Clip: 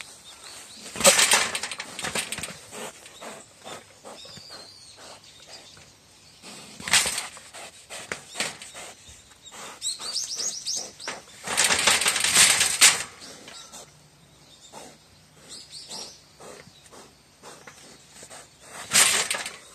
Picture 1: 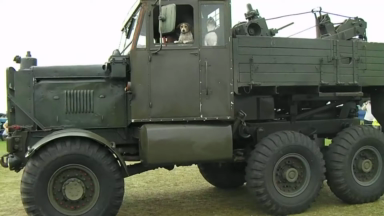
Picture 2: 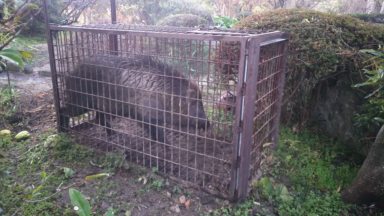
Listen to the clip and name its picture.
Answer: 2